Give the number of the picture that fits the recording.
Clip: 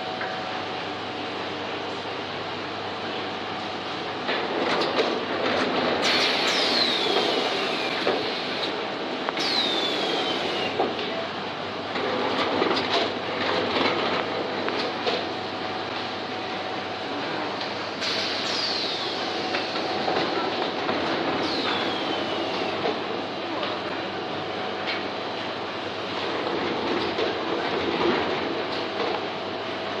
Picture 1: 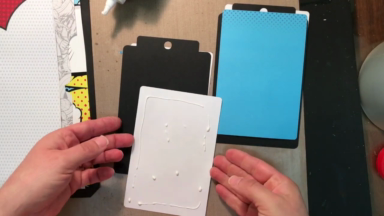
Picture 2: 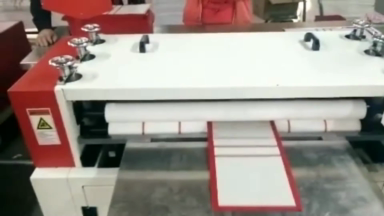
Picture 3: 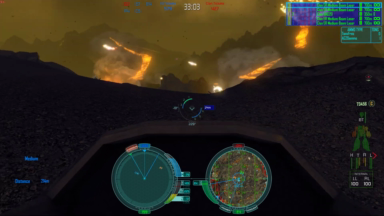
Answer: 2